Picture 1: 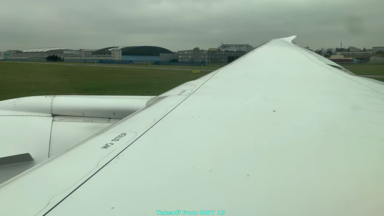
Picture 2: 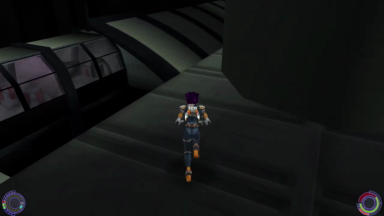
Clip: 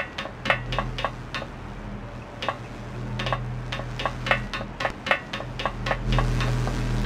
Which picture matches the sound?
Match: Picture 2